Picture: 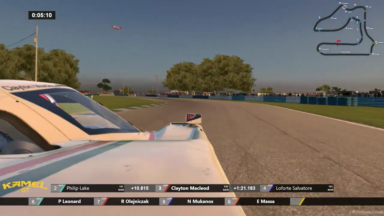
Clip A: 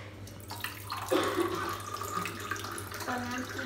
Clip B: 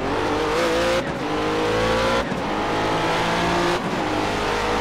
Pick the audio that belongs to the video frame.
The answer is B